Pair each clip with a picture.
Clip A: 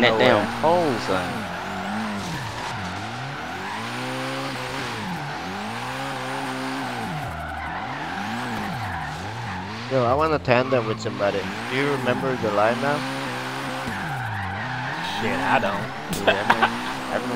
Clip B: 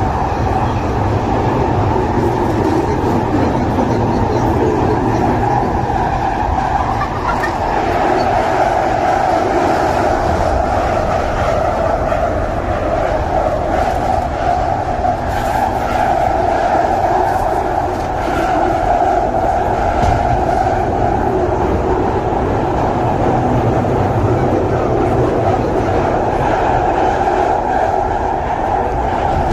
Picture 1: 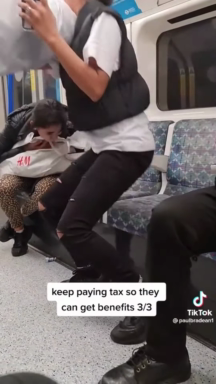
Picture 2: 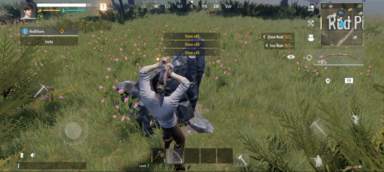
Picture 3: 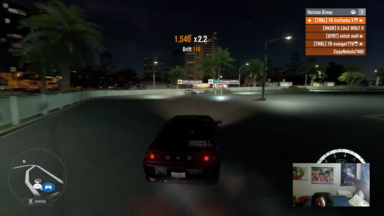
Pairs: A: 3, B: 1